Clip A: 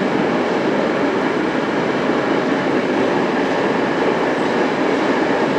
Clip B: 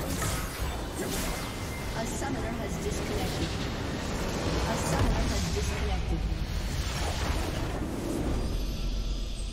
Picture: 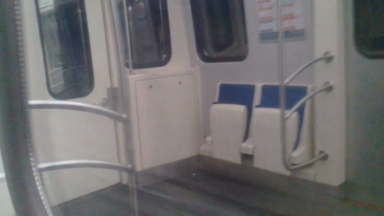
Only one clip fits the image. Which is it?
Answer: A